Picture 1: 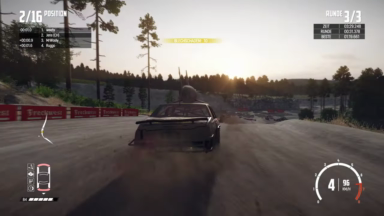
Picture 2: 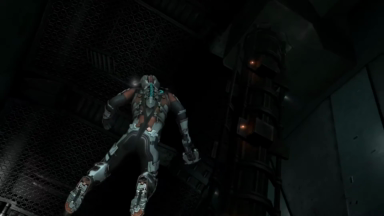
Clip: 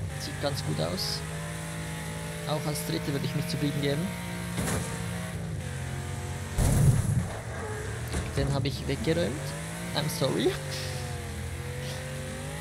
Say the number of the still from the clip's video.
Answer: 1